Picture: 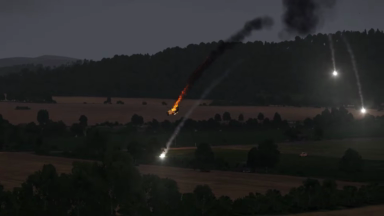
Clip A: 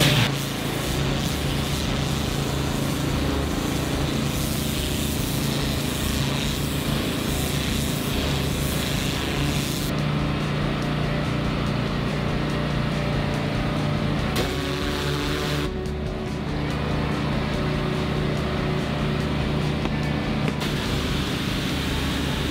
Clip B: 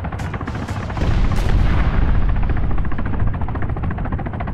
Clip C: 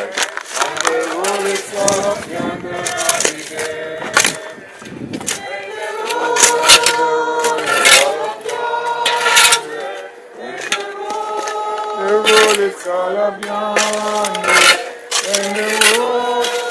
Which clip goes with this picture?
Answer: B